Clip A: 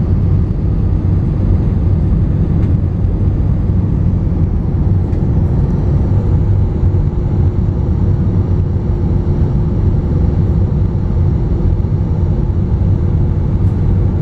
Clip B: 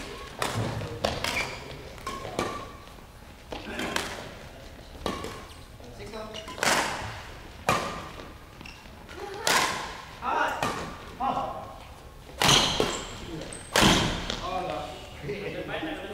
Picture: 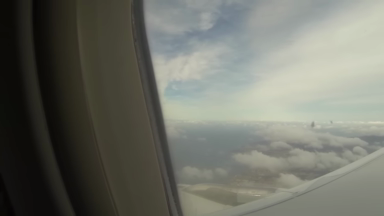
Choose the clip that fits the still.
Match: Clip A